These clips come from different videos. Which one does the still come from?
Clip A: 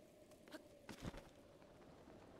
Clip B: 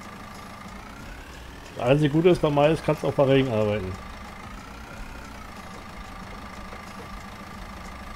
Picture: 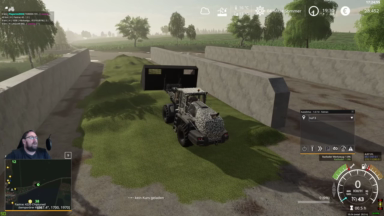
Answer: B